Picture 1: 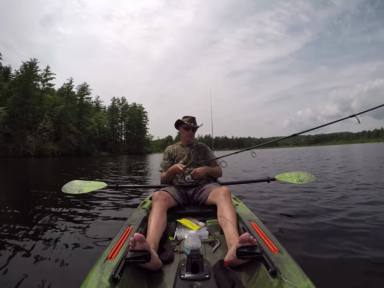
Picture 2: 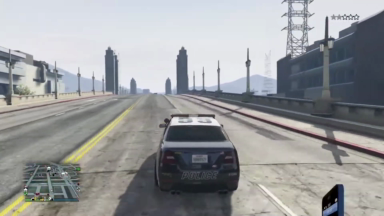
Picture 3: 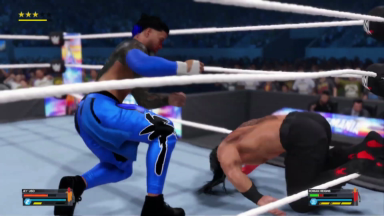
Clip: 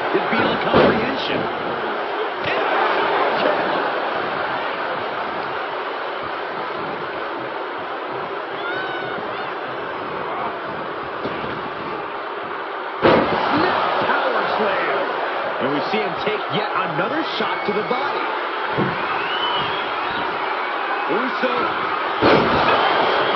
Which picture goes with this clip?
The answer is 3